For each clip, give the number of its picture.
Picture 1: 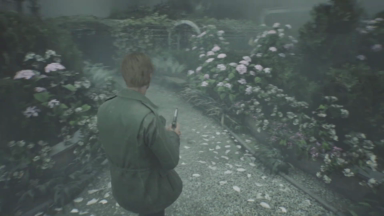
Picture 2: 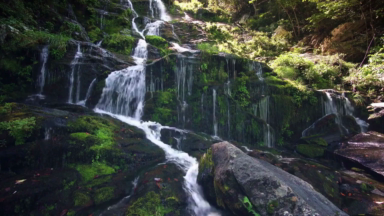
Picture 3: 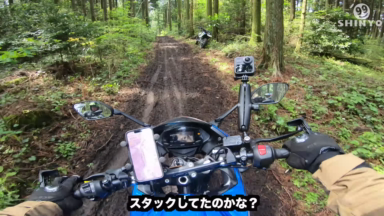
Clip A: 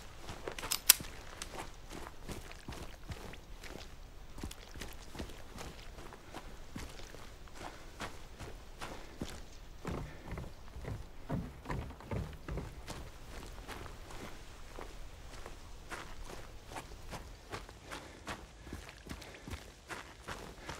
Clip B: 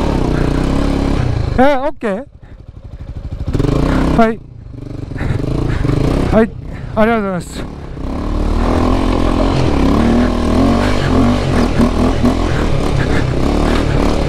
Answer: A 1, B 3